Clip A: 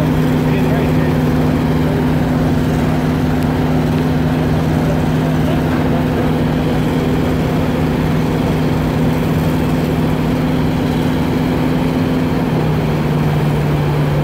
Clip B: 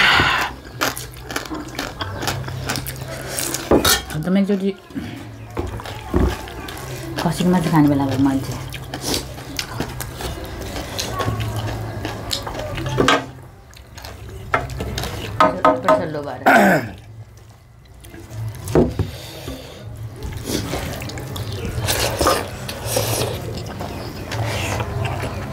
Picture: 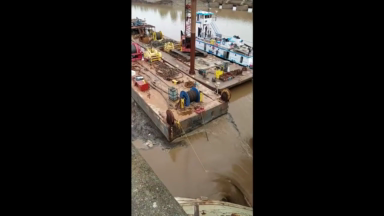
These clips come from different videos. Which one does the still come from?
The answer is A